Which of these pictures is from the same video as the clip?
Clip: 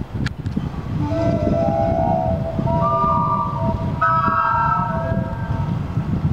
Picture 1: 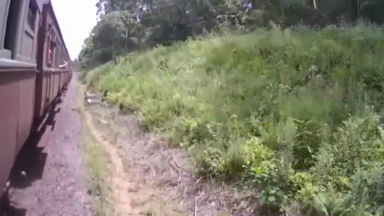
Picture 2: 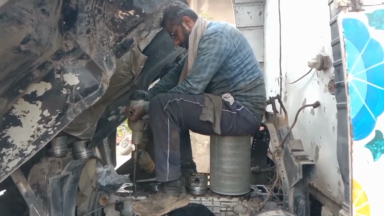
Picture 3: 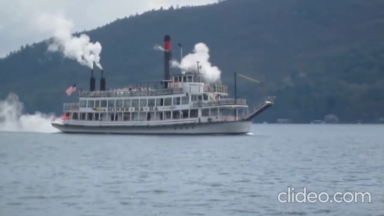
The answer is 3